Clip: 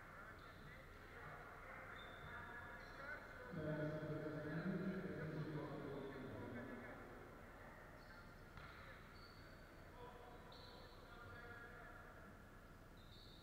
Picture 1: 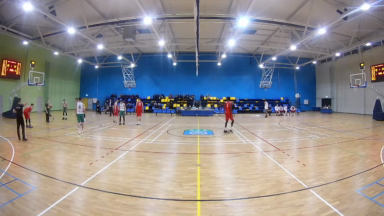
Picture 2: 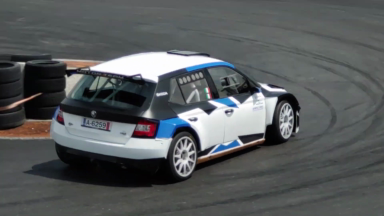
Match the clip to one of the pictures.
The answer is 1